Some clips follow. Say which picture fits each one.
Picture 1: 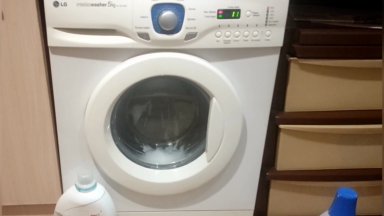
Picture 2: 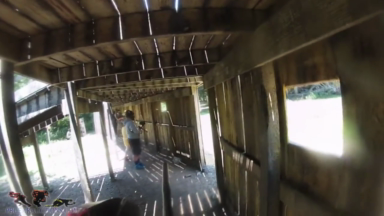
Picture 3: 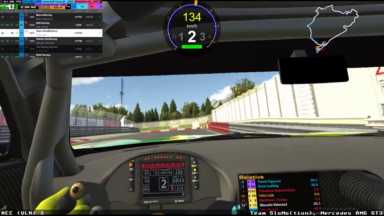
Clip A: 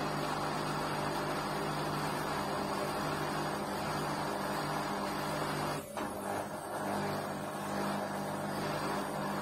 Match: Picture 1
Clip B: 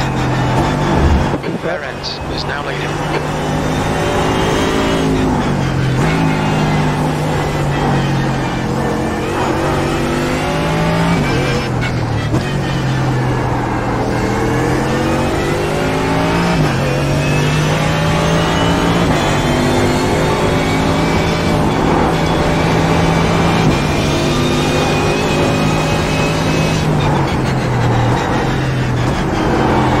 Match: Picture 3